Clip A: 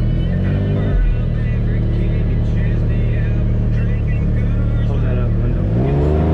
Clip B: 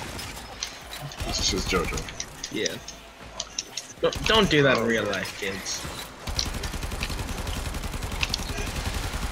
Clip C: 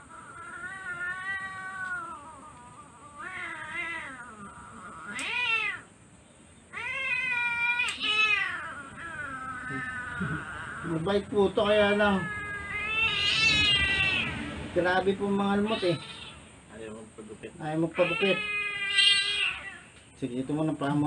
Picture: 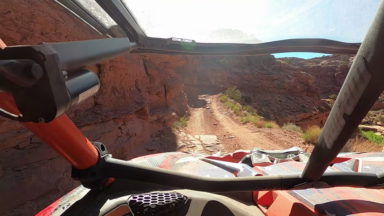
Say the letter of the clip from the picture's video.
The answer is A